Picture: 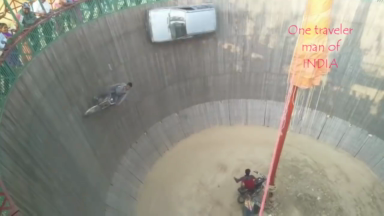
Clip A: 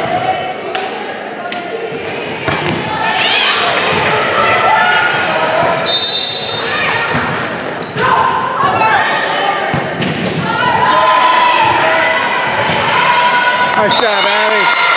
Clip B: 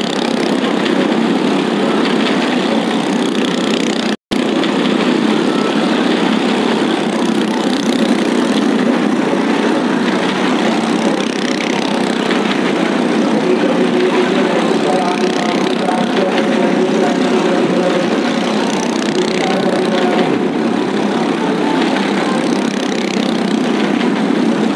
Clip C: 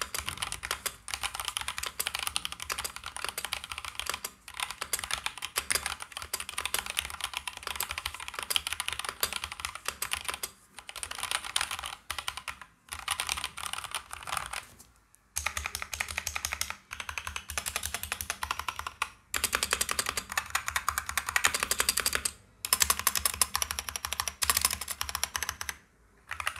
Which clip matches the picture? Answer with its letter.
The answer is B